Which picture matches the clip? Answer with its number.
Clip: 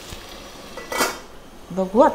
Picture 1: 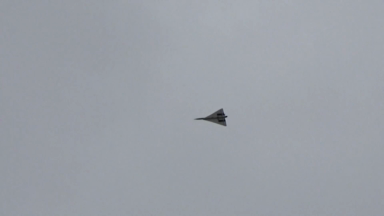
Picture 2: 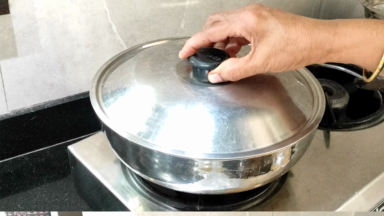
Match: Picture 2